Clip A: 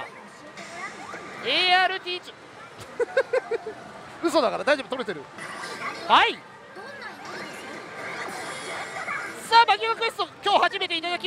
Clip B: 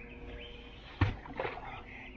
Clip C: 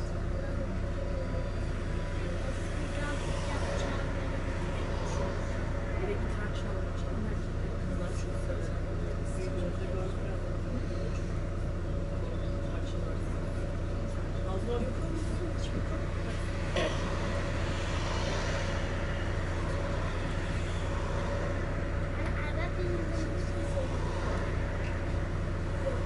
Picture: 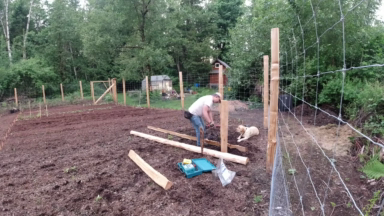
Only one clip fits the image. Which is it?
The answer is B